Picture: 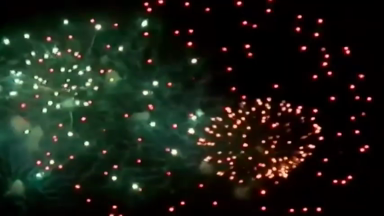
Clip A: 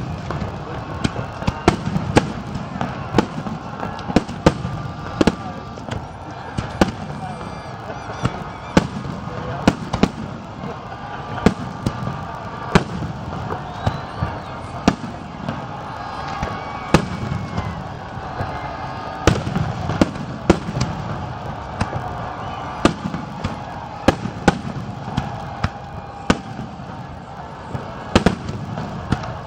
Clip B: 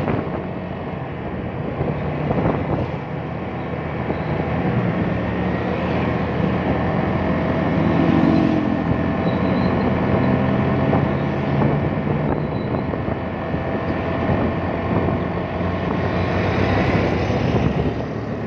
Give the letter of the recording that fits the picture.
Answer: A